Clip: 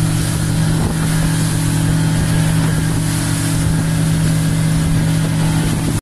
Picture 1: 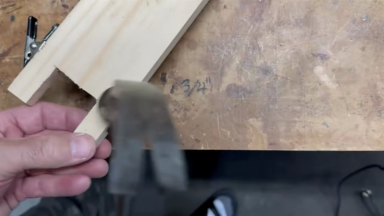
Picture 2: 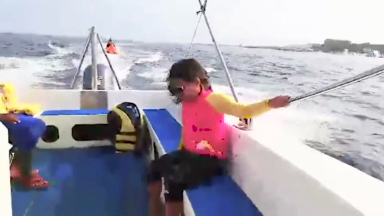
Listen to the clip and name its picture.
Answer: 2